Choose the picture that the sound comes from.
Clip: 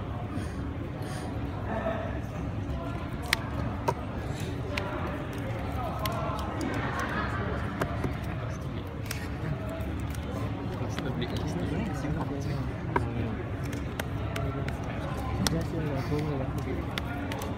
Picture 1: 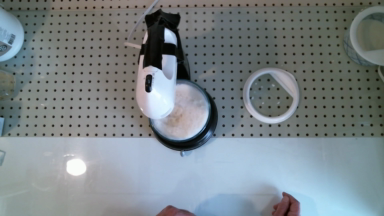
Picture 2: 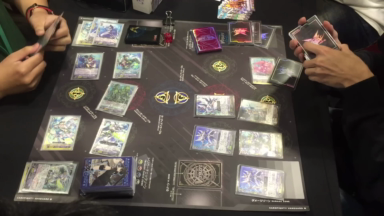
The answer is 2